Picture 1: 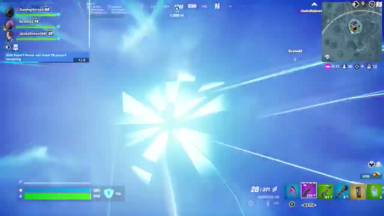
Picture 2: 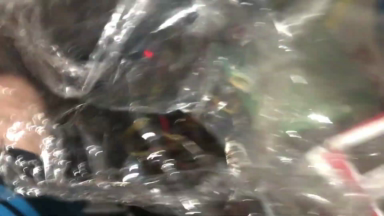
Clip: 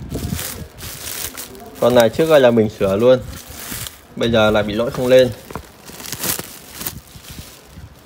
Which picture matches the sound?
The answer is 2